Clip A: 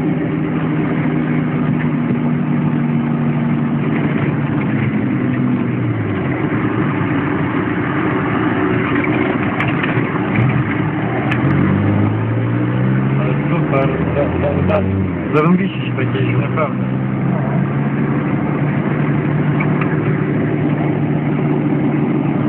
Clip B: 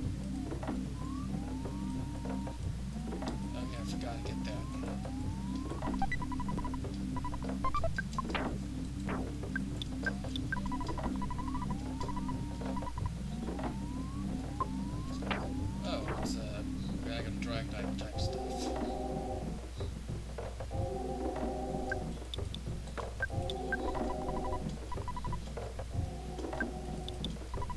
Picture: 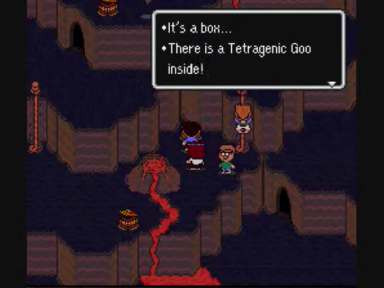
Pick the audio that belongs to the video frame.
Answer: B